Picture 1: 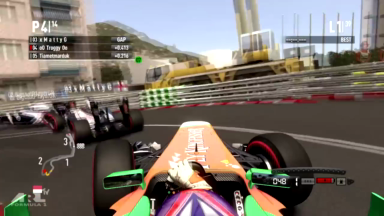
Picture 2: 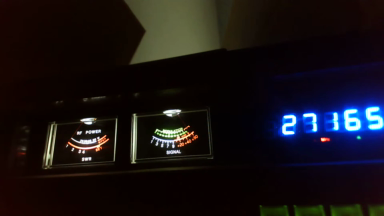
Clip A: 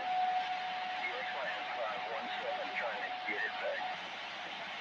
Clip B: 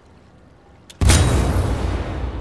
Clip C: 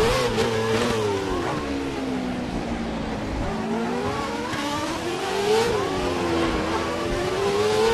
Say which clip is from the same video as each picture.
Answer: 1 C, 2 A